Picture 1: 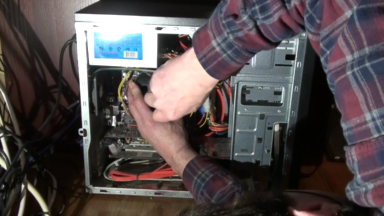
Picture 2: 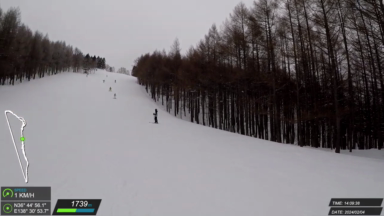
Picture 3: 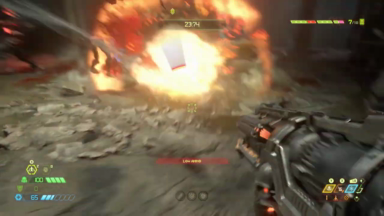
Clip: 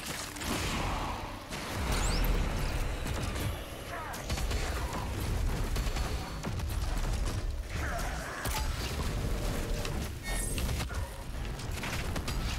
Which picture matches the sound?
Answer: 3